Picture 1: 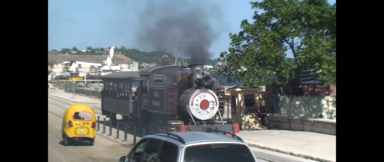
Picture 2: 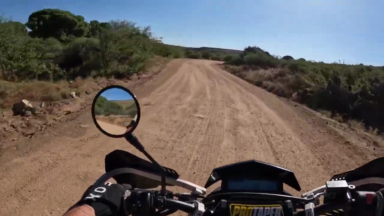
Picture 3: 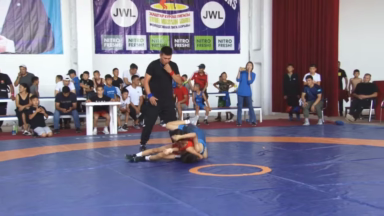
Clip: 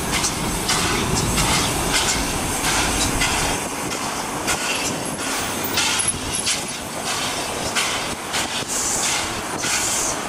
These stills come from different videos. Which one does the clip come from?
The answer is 1